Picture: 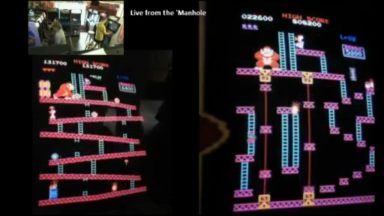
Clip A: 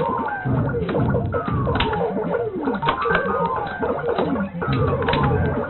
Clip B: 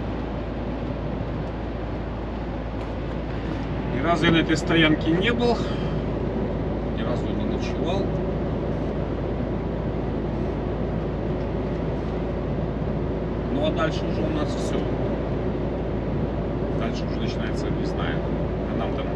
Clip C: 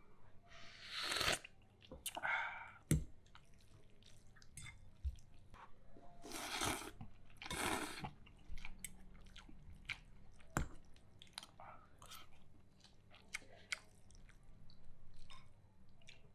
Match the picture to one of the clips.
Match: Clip A